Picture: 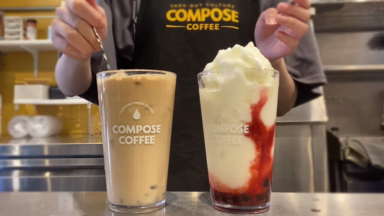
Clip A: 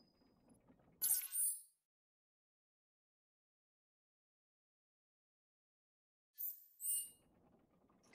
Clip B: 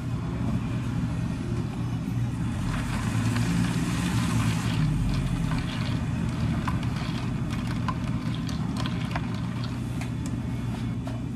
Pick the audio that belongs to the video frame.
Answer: B